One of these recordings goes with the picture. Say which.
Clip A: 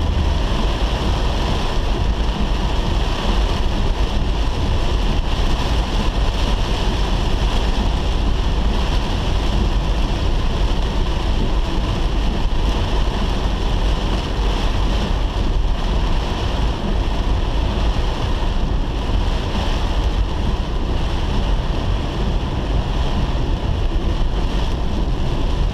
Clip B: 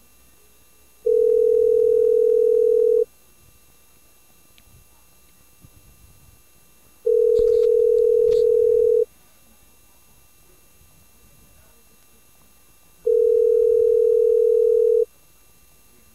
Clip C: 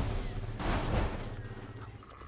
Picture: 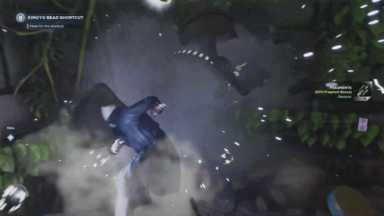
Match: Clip C